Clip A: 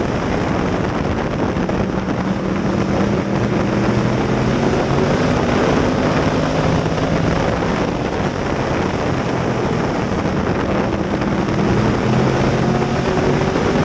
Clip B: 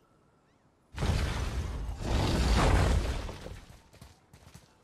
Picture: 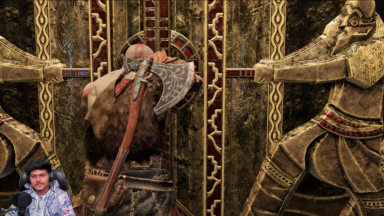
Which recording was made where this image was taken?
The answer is B